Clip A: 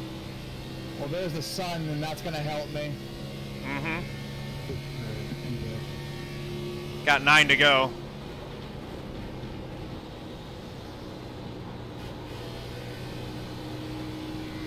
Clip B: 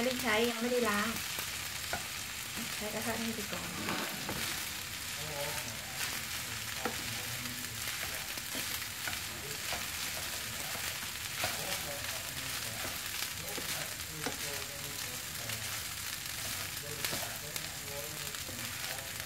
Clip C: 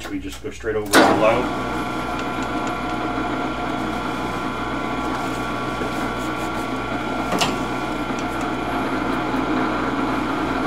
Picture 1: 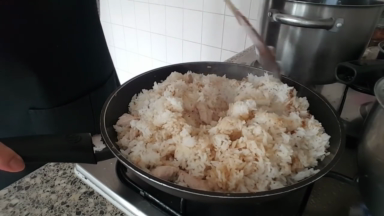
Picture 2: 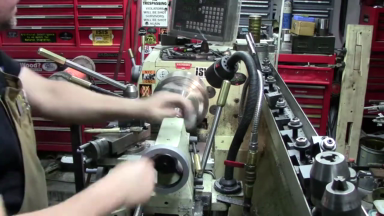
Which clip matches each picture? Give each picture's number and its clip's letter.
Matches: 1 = B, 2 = C